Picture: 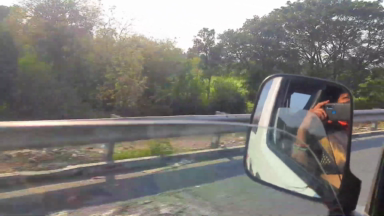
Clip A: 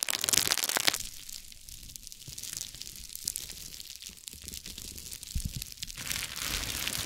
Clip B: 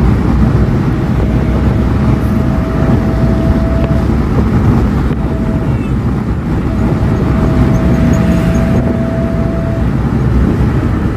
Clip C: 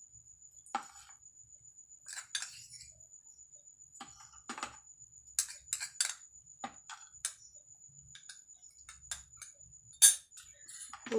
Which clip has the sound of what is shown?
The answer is B